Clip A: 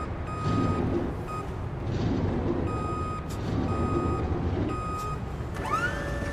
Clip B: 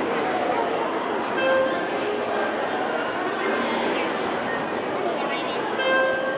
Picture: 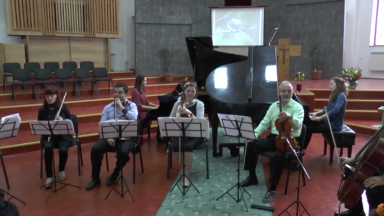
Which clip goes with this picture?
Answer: B